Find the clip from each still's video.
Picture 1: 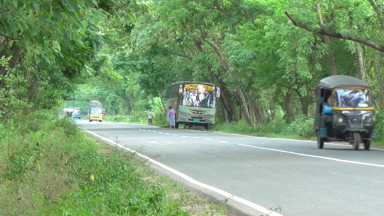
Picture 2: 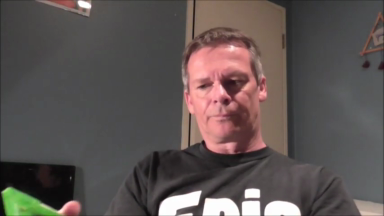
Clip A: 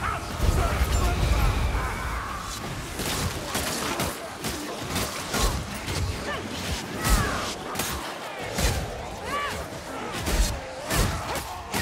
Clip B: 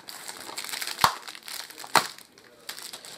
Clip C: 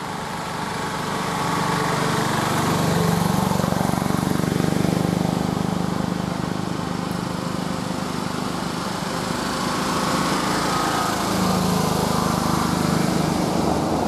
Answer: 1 C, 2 B